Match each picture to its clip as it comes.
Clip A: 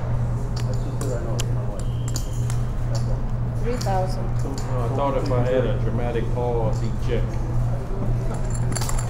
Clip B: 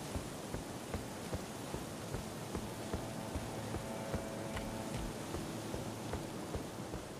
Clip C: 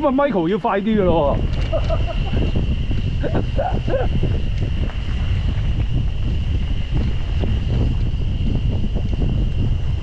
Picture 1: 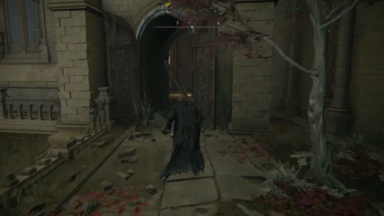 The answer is B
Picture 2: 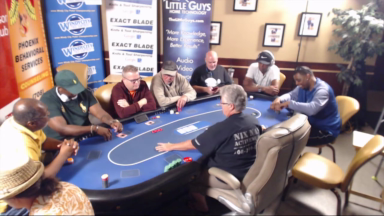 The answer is A